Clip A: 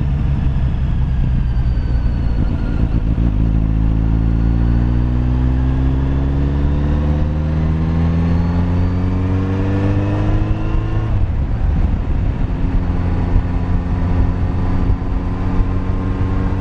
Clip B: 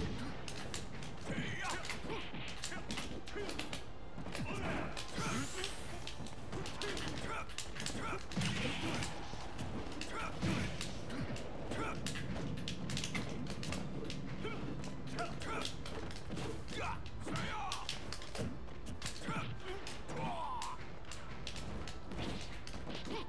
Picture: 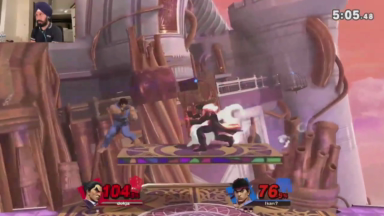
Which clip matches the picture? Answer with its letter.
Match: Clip B